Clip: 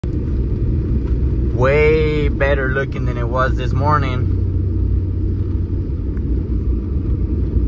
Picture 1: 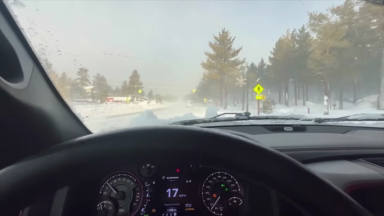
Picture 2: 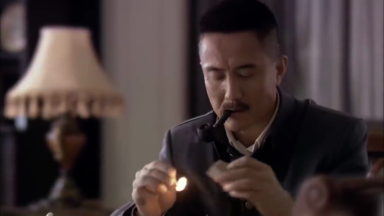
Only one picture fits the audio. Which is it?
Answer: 1